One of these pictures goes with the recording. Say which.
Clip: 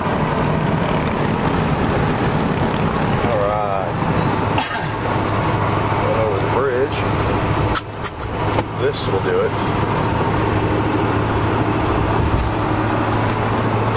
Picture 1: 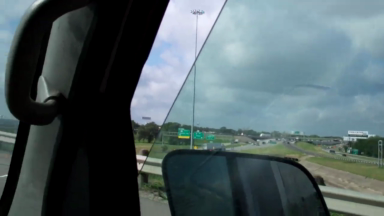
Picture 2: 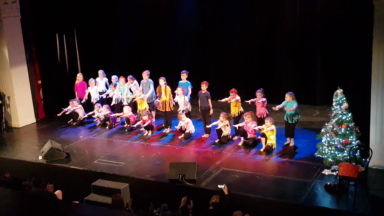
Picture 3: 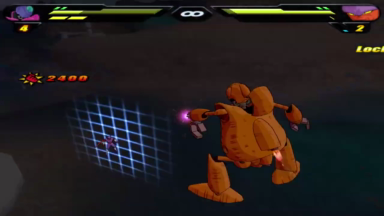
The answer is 1